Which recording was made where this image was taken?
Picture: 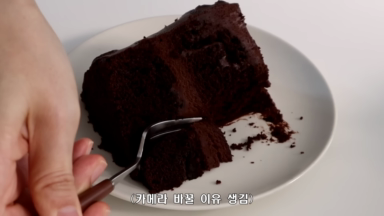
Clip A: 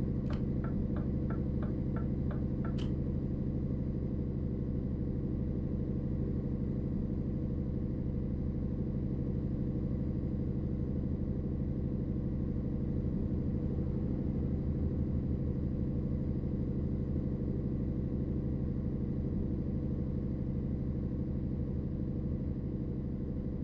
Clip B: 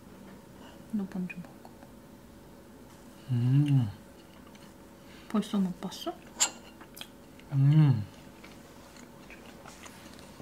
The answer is B